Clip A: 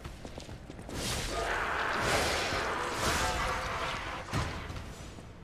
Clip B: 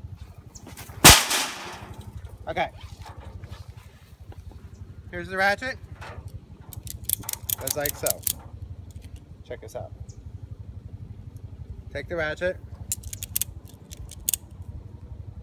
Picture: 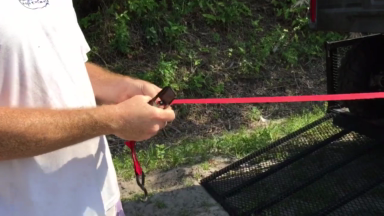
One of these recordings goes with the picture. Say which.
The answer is B